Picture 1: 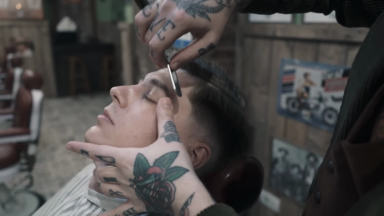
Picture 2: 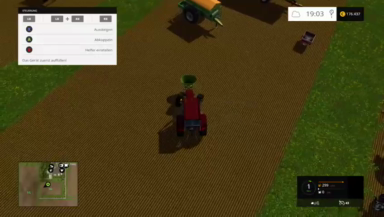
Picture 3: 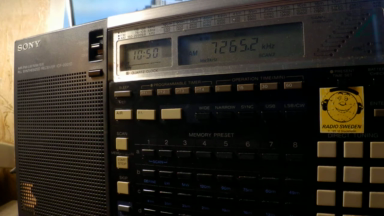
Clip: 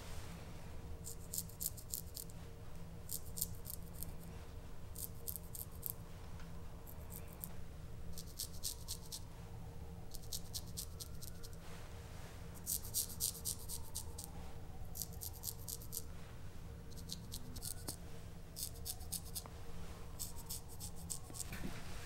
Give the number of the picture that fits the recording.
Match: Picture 1